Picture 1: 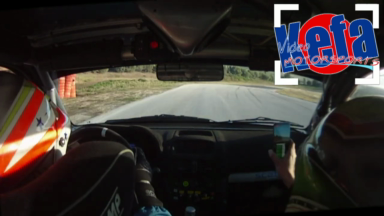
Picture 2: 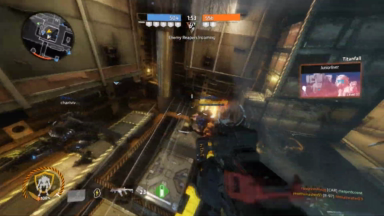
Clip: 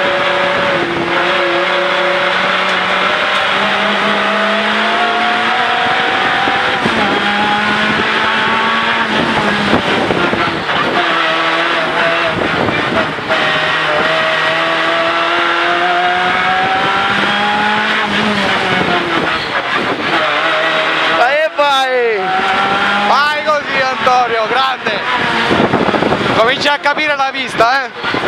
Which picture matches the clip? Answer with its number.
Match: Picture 1